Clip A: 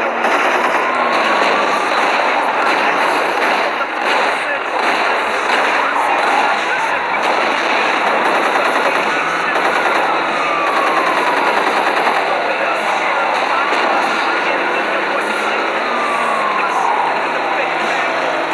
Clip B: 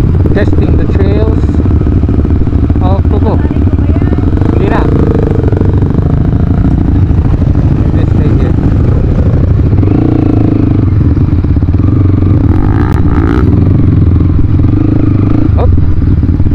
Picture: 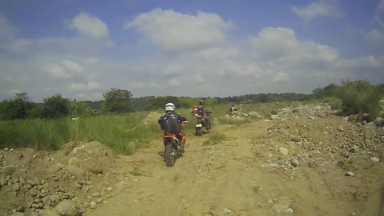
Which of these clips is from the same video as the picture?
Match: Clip B